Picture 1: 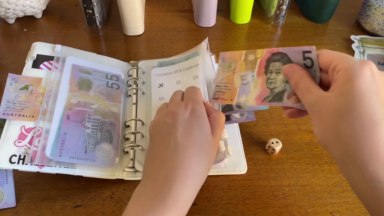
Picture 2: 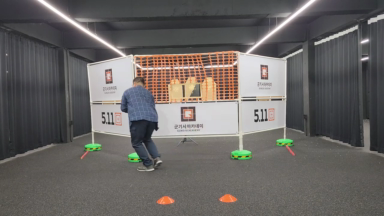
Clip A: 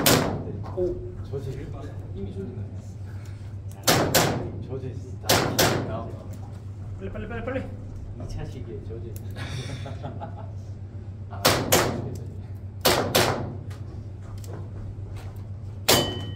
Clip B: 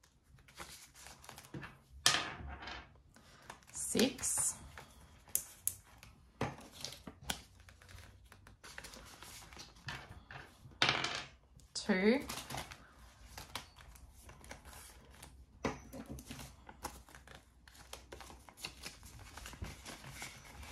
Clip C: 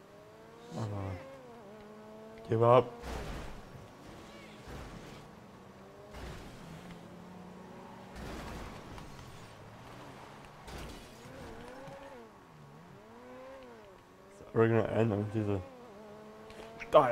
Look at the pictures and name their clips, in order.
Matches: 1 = B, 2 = A